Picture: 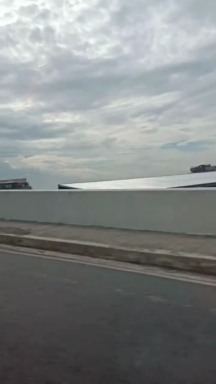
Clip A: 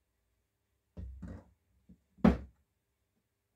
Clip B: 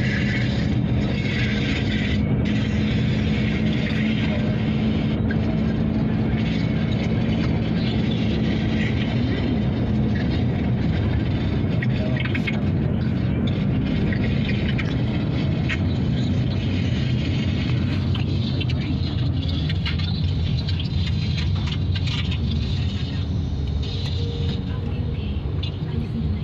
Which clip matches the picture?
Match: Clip B